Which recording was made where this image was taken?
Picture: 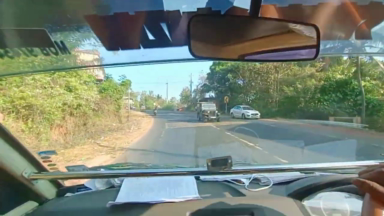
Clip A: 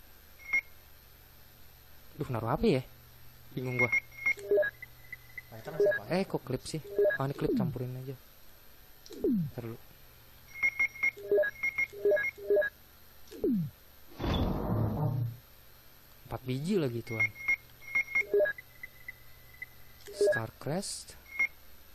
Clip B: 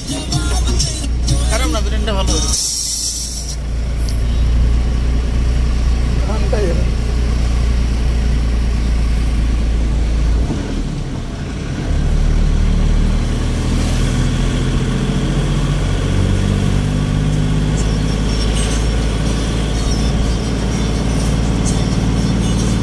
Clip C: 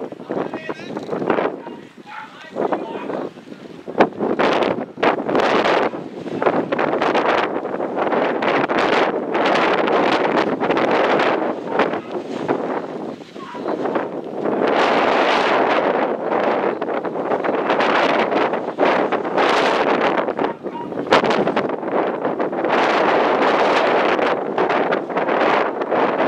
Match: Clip B